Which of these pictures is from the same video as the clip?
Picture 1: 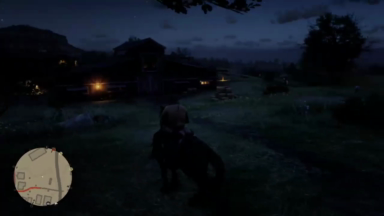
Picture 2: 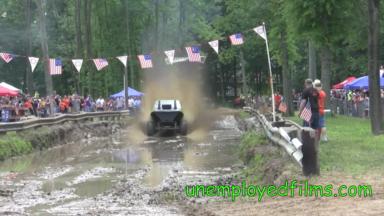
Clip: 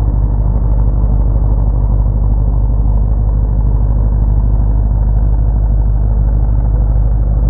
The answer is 2